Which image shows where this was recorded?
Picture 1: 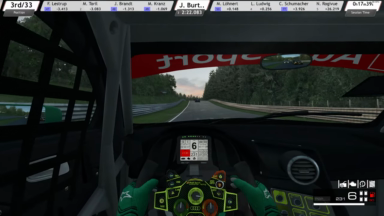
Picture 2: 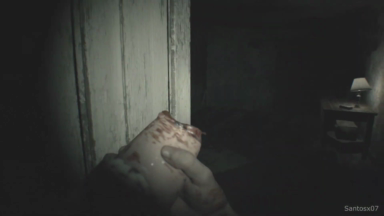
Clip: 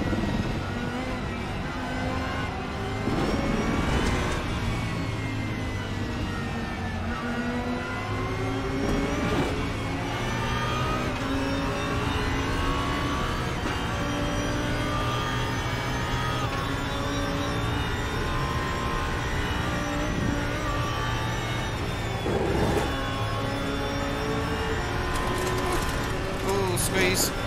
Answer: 1